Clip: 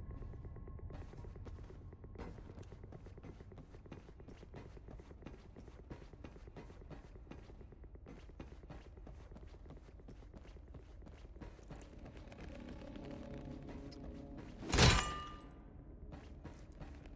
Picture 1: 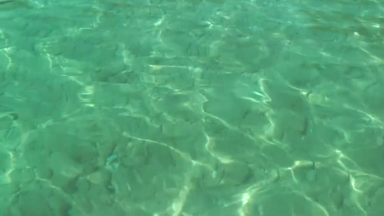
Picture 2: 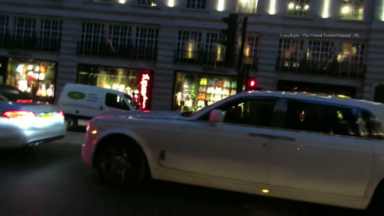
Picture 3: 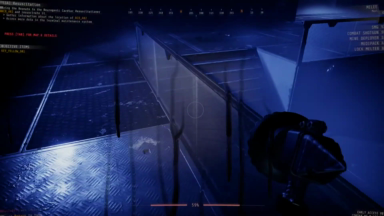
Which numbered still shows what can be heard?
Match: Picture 3